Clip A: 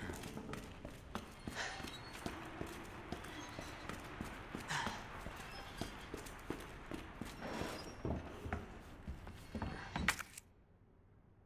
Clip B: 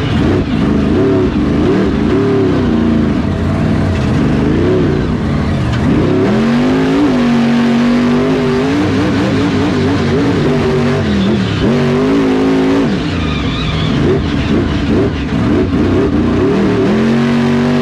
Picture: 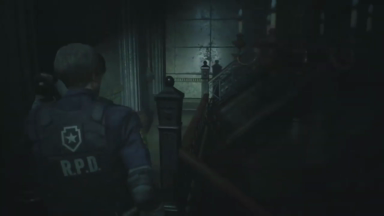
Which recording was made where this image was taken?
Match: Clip A